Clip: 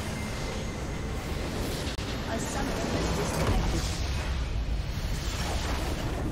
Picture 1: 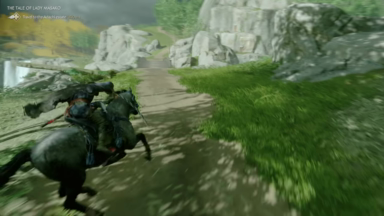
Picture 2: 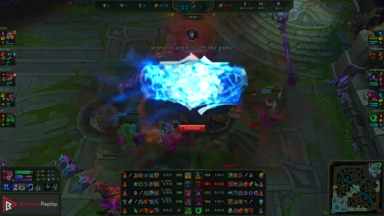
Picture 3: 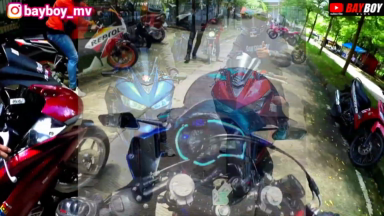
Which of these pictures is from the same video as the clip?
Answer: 2